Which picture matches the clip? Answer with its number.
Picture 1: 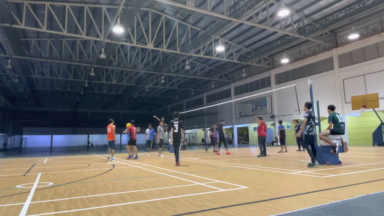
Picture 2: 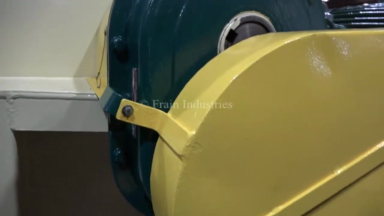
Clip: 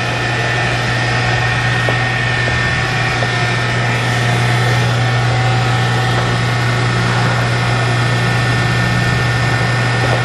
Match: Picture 2